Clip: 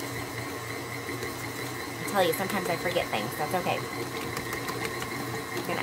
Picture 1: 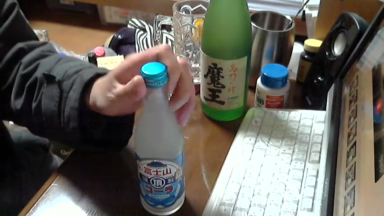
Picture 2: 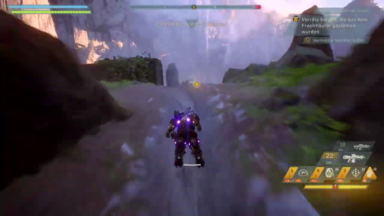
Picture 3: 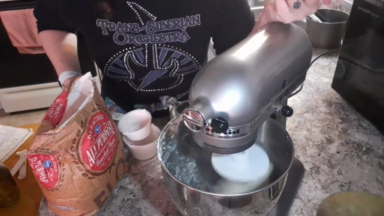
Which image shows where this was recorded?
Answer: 3